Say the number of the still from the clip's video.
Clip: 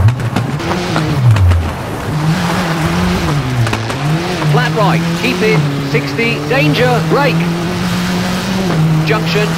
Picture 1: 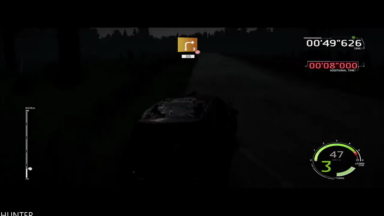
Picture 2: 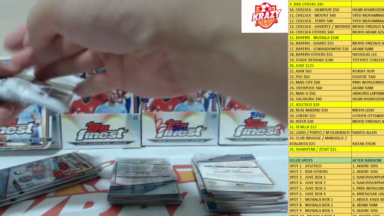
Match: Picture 1